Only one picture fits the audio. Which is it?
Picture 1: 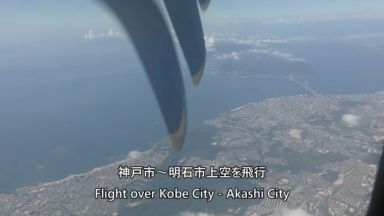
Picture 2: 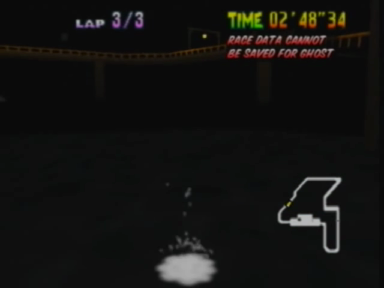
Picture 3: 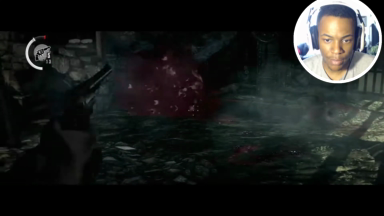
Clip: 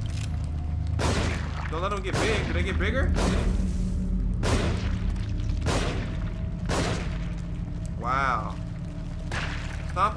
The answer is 3